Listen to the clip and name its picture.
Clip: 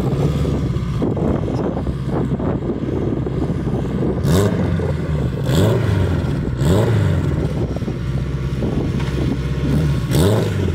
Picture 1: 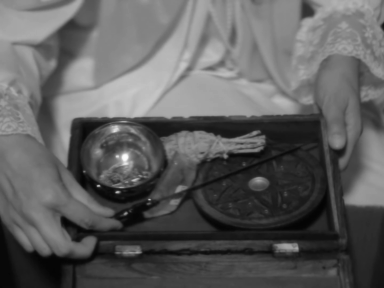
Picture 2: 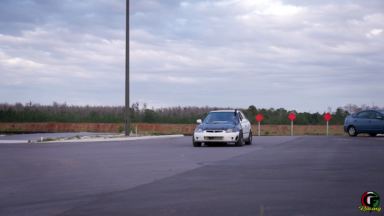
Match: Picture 2